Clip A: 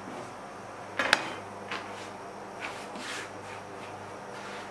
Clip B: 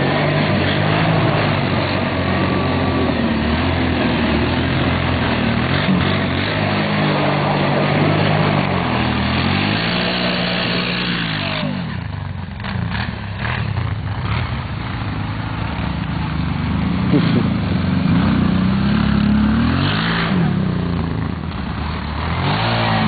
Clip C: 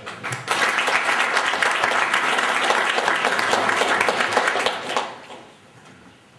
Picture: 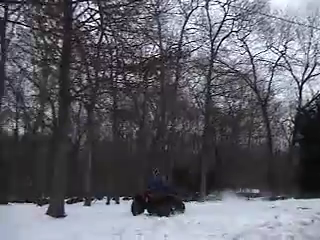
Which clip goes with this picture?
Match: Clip B